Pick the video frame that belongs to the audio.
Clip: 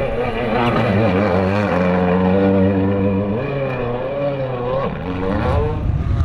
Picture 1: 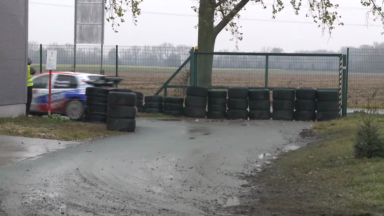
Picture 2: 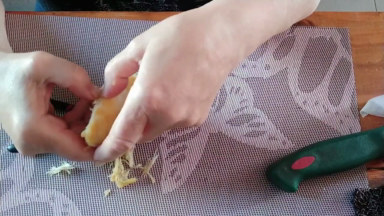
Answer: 1